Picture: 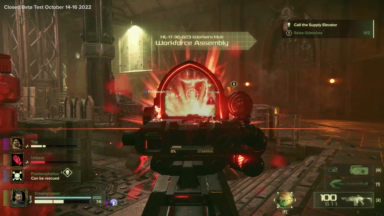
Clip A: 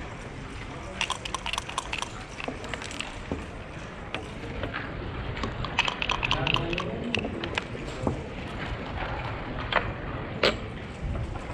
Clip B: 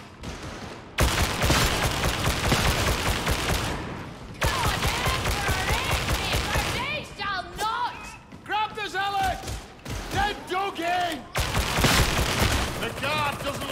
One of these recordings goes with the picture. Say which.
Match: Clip B